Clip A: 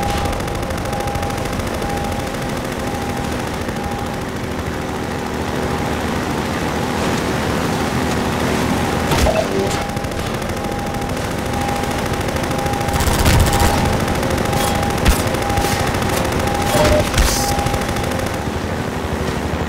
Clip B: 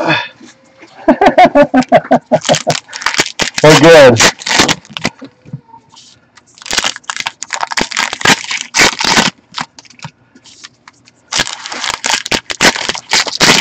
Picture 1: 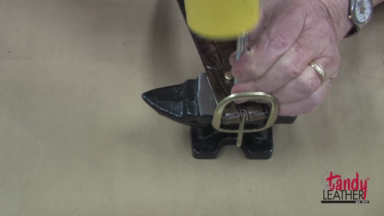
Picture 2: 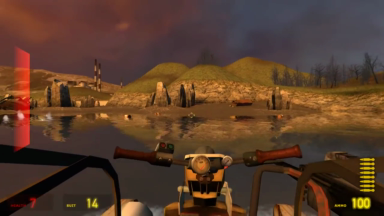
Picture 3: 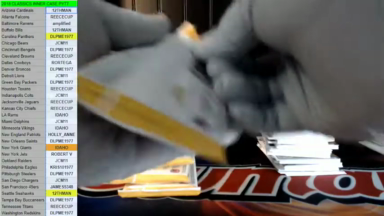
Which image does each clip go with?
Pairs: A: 2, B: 3